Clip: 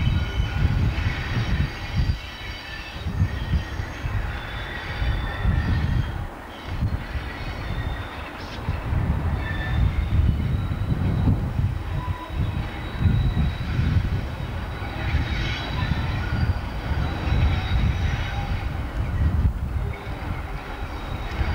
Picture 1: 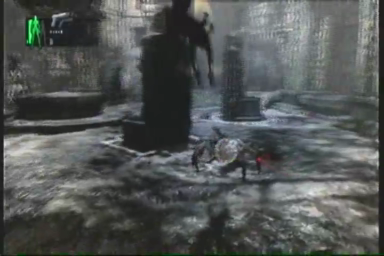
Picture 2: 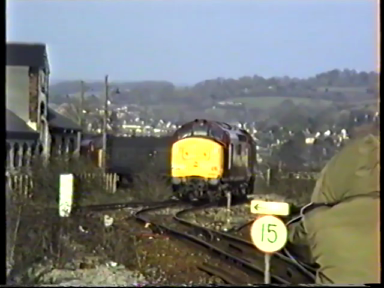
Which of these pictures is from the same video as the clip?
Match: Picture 2